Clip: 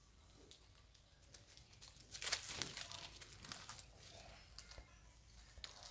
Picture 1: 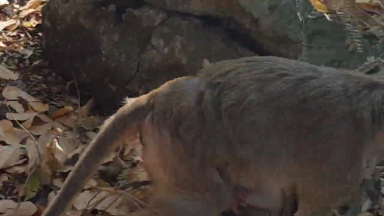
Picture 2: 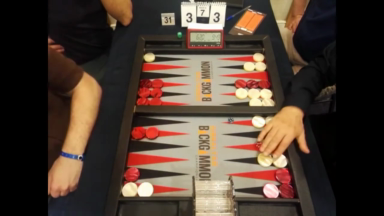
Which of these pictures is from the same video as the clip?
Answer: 1